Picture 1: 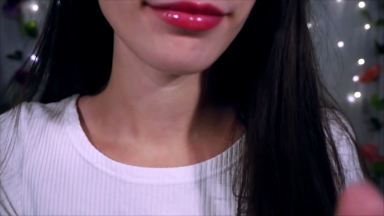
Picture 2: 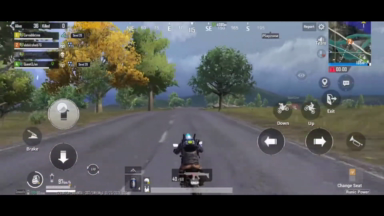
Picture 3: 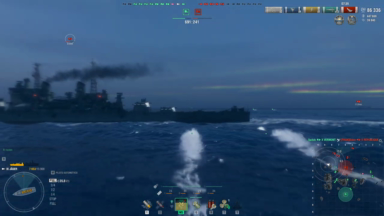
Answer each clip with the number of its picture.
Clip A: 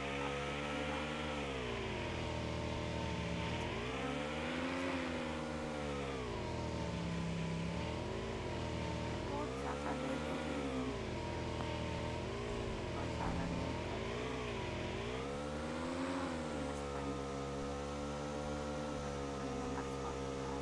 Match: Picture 2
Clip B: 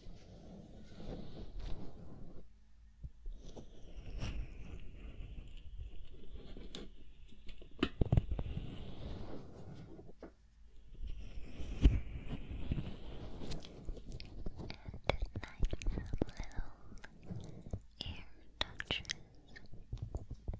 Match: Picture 1